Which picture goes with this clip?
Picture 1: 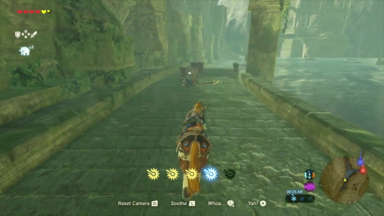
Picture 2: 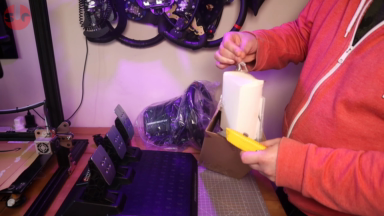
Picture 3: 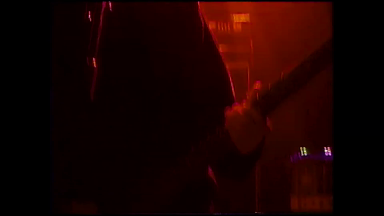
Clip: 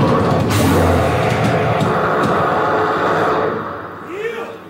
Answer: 3